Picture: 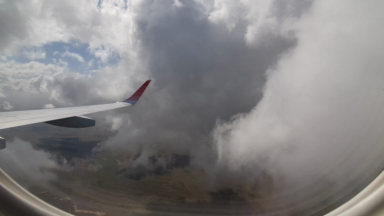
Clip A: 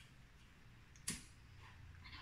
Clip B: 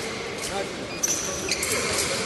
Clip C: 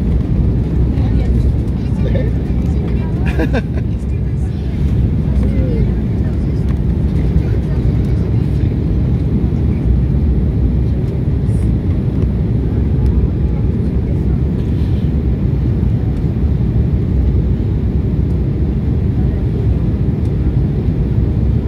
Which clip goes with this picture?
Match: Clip C